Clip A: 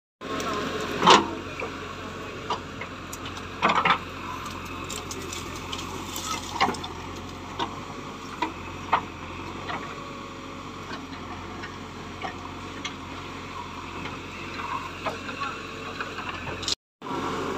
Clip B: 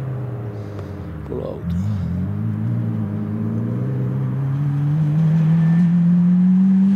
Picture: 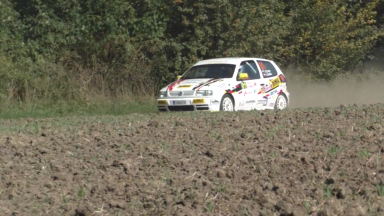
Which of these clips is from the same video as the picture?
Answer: B